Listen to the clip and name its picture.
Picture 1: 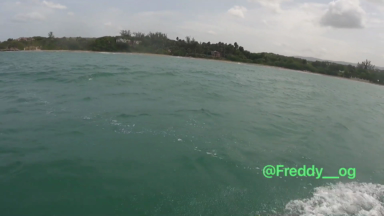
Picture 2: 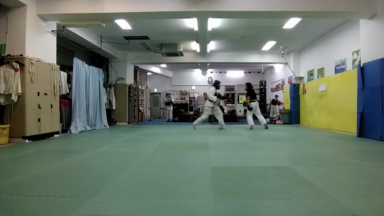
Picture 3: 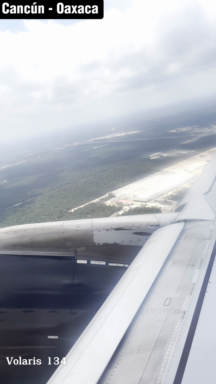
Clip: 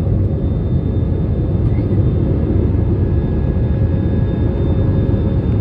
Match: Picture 3